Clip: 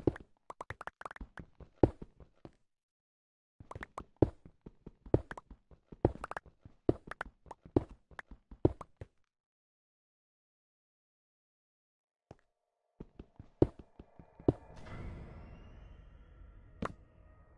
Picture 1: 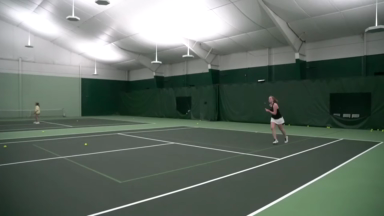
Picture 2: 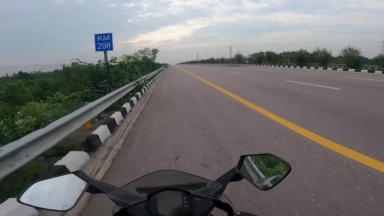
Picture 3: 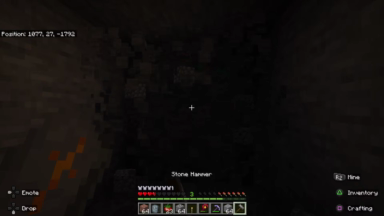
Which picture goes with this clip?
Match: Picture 3